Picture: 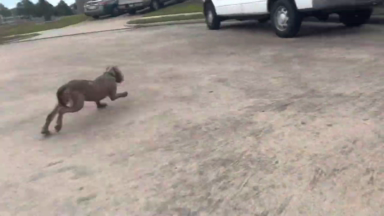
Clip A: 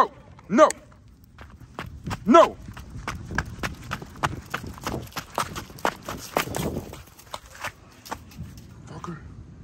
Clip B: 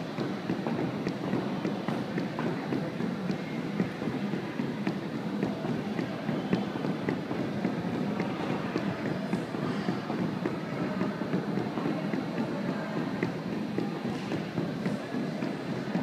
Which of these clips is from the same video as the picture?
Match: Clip A